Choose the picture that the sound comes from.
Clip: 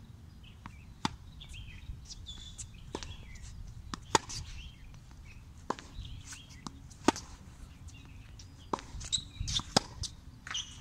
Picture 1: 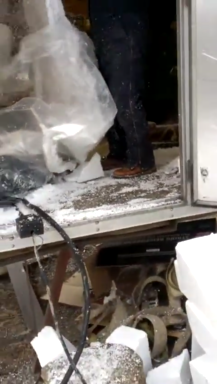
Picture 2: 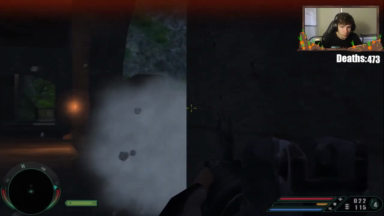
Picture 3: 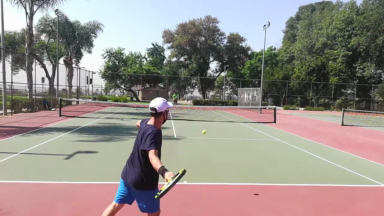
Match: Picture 3